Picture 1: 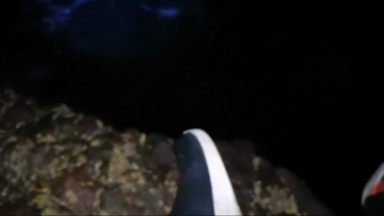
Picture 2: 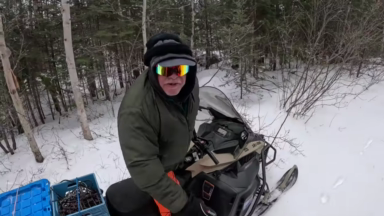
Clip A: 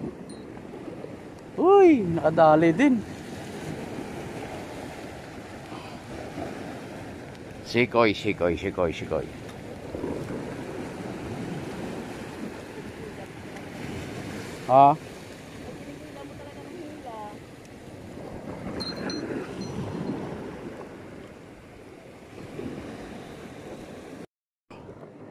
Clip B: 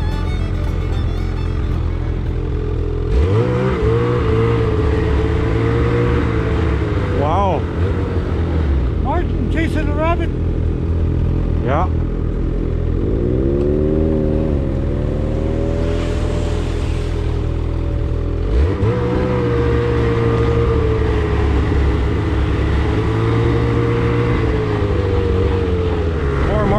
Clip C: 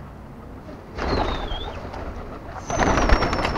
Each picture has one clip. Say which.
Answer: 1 A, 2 B